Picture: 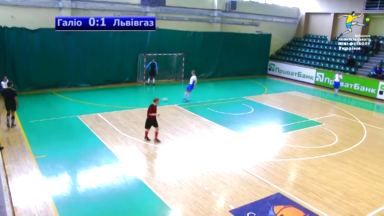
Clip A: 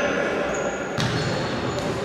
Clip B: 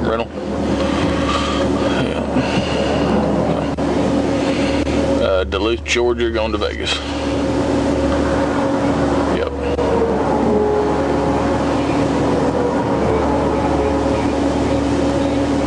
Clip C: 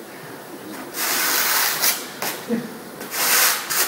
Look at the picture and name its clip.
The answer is A